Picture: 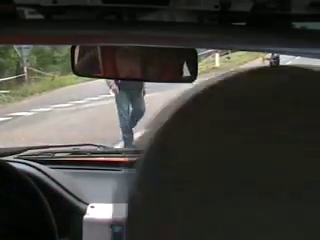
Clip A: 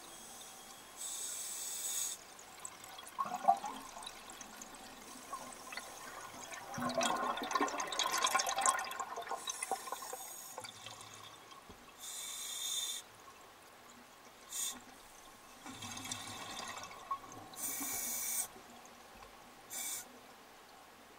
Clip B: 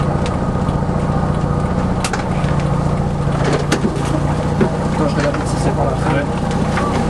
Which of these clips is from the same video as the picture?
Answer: B